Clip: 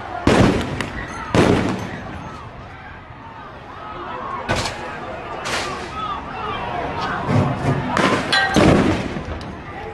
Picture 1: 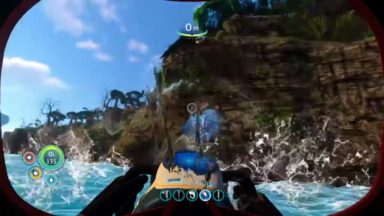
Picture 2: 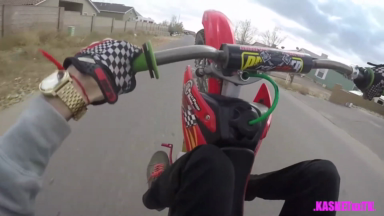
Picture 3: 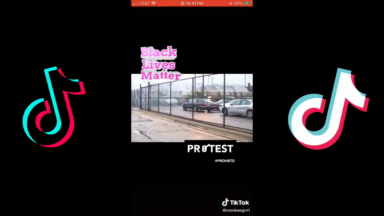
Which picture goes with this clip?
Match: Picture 3